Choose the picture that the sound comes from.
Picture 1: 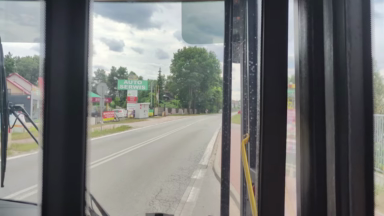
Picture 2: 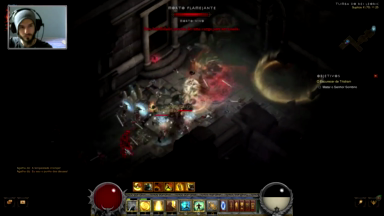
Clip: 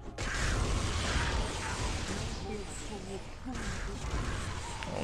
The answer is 2